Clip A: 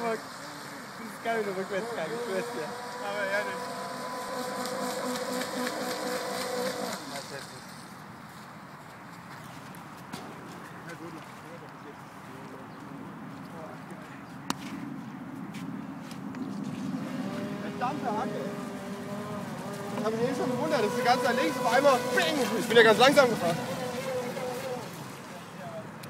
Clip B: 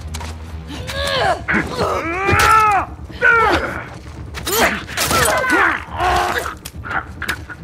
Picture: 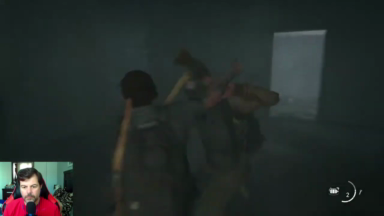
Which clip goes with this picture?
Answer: B